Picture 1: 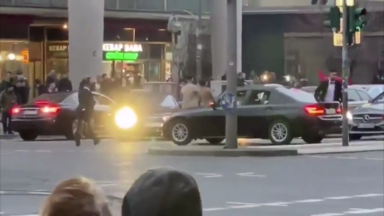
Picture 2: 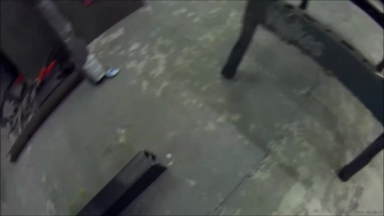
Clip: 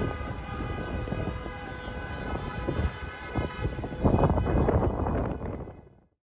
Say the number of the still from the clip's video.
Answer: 1